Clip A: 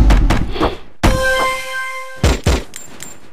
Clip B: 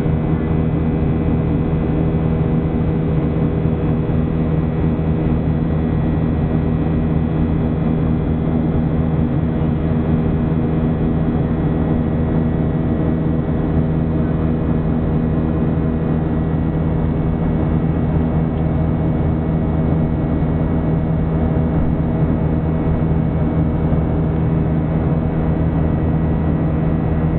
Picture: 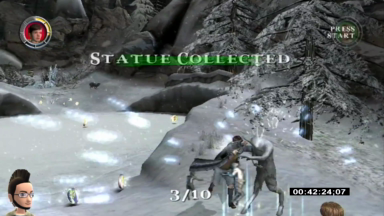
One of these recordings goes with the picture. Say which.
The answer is A